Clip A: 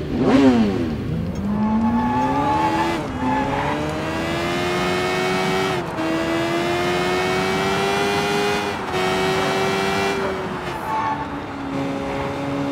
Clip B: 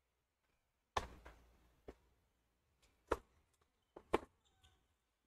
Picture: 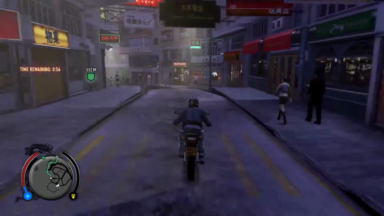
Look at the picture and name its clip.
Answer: A